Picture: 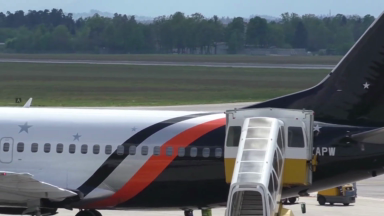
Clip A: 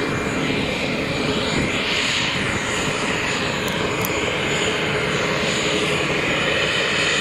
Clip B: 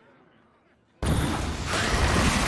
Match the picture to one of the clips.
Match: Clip A